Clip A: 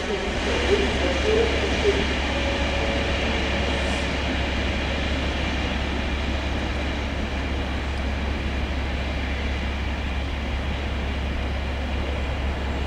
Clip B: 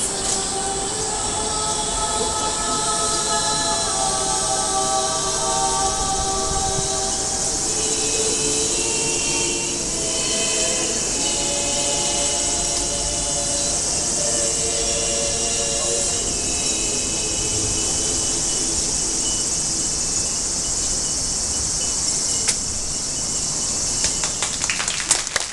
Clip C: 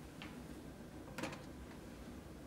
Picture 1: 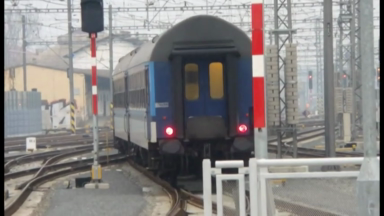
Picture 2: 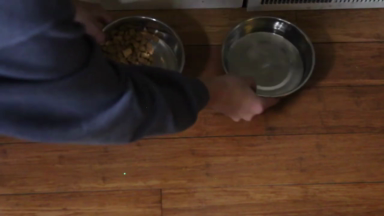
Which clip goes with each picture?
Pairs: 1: A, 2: C